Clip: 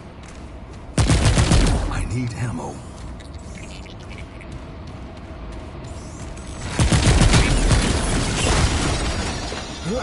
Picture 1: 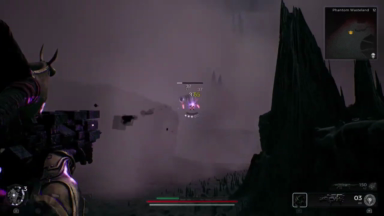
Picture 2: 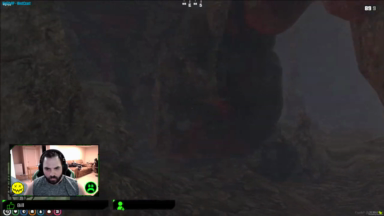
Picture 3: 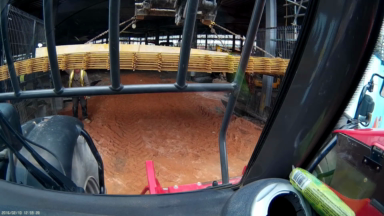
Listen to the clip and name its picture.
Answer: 1